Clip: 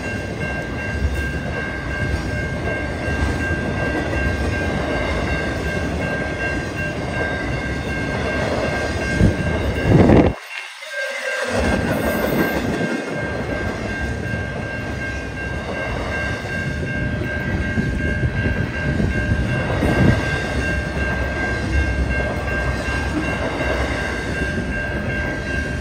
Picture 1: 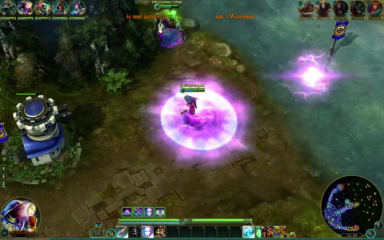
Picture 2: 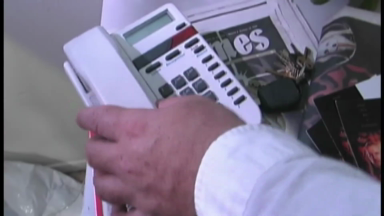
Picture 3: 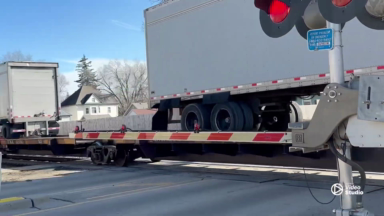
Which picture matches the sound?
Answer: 3